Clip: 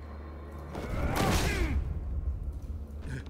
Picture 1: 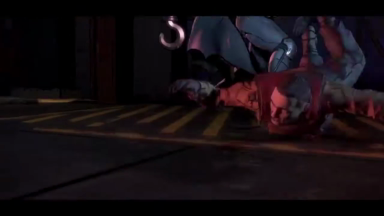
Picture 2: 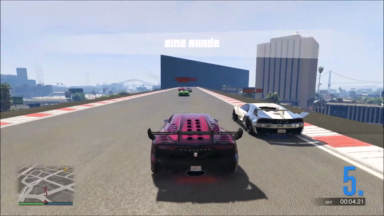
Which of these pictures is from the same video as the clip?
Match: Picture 1